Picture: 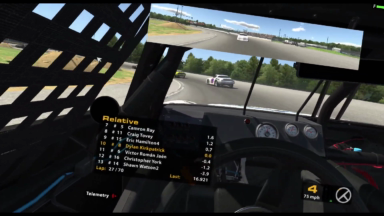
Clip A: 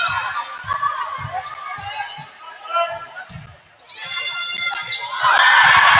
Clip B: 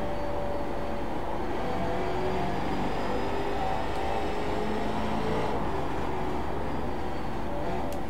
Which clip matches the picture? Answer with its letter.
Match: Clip B